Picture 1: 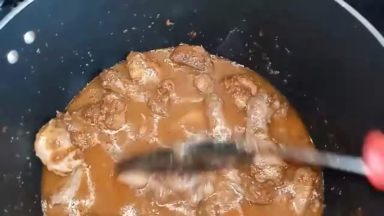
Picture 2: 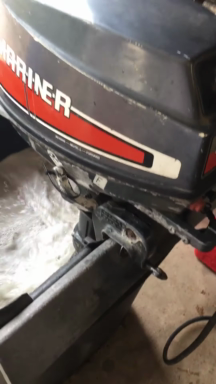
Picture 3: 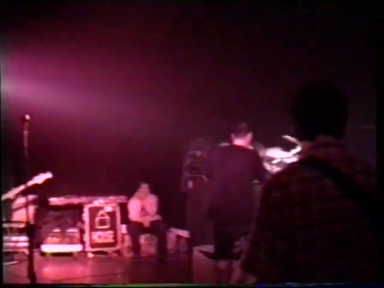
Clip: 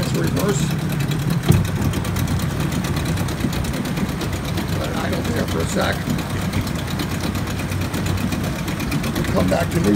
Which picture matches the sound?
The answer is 2